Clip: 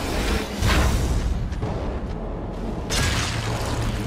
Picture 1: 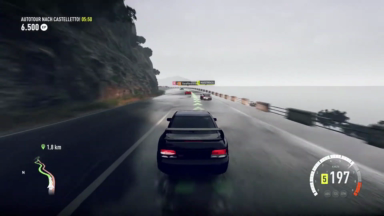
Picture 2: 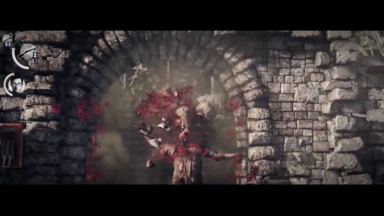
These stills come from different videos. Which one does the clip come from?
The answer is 2